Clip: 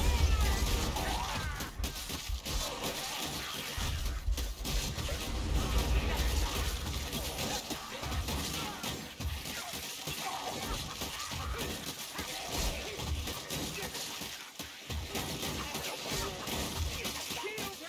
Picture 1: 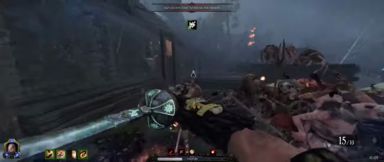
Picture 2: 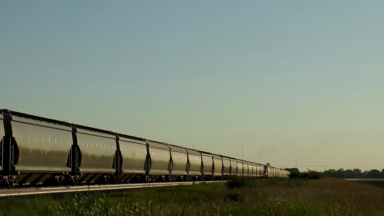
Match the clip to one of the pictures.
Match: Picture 1